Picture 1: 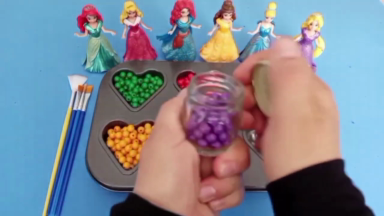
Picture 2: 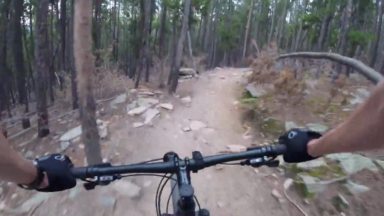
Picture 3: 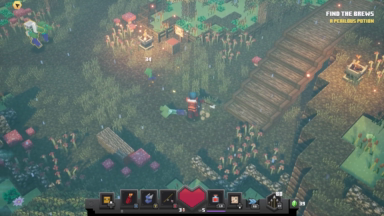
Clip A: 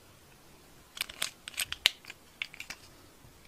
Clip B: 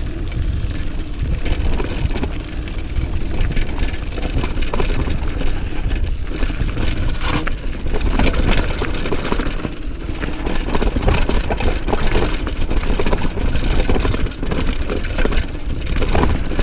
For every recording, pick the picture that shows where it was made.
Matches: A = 1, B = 2